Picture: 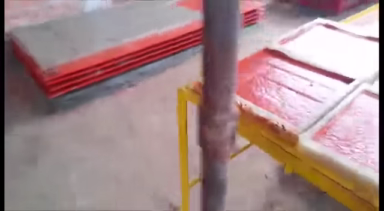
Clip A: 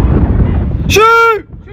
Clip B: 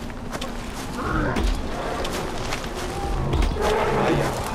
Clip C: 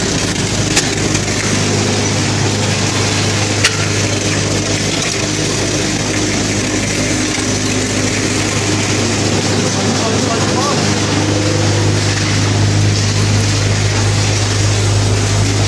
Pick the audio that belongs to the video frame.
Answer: C